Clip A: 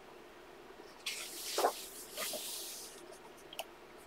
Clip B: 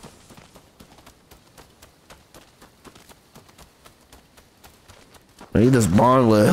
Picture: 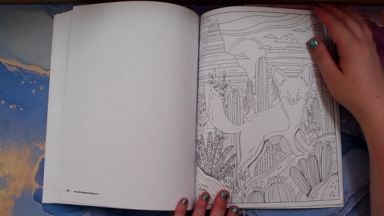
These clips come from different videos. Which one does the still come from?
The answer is A